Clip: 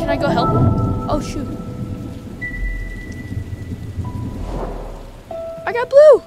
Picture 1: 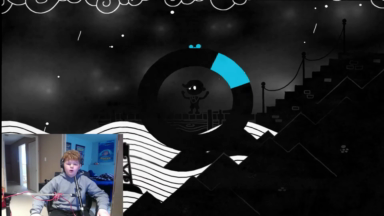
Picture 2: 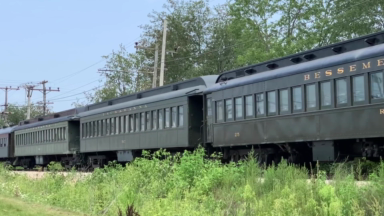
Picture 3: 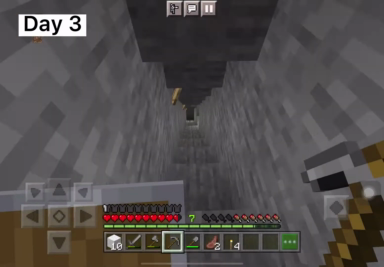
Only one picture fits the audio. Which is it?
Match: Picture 1